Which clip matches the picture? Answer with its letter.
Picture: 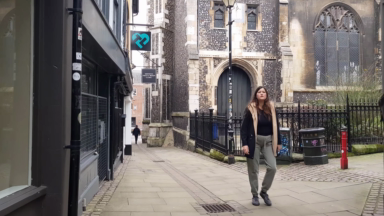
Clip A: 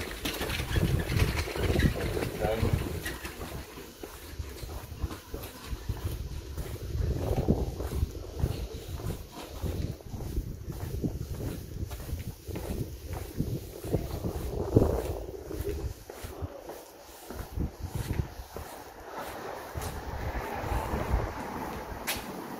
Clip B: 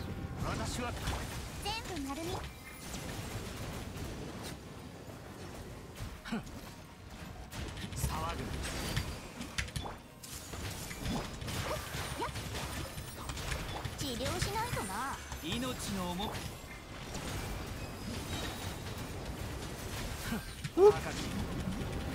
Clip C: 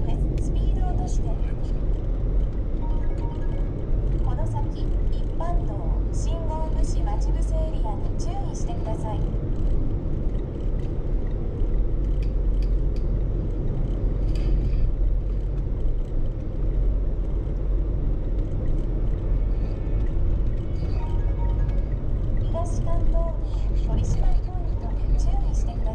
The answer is A